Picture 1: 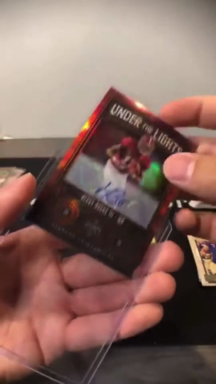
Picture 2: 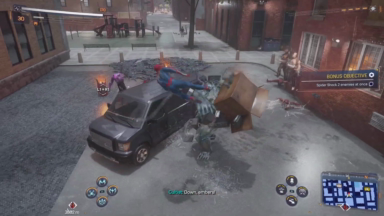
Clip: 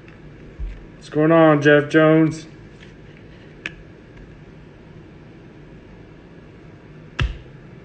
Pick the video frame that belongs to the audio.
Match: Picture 1